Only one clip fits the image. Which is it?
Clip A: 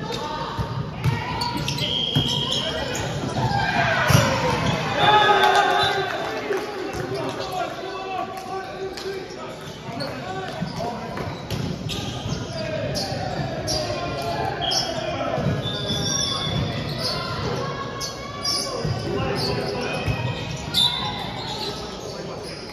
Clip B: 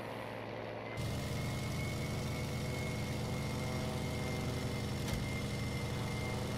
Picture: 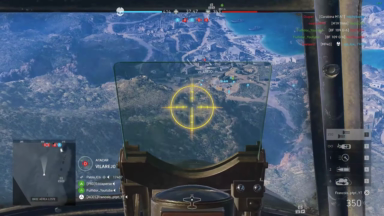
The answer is B